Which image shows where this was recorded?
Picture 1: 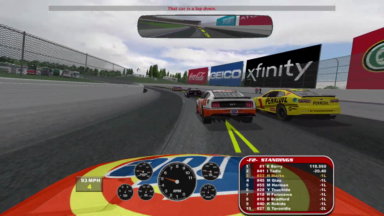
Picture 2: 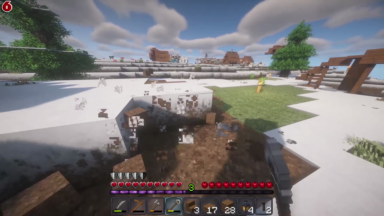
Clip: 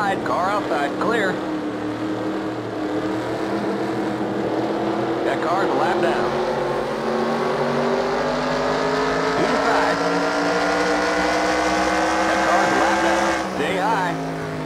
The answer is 1